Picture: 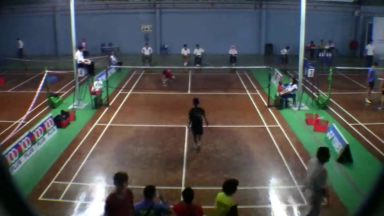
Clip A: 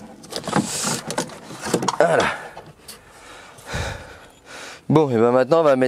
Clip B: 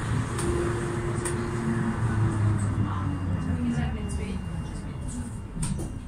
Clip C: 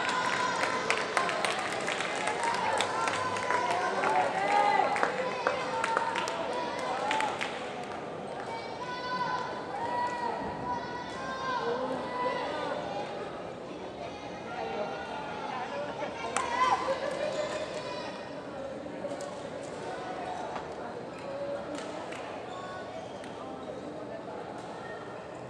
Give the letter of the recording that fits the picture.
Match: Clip C